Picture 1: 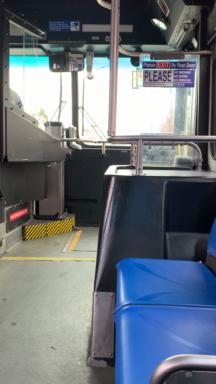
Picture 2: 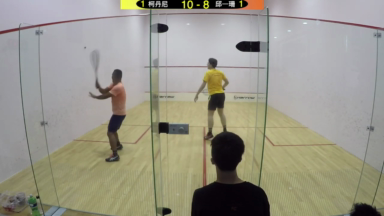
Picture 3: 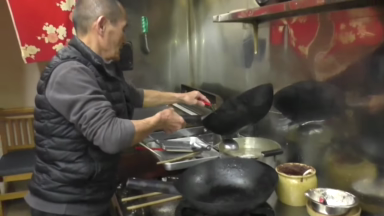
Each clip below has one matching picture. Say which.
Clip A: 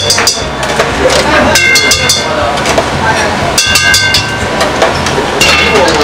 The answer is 3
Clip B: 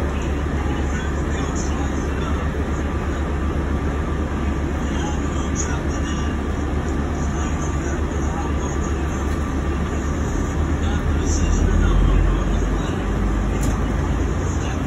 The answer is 1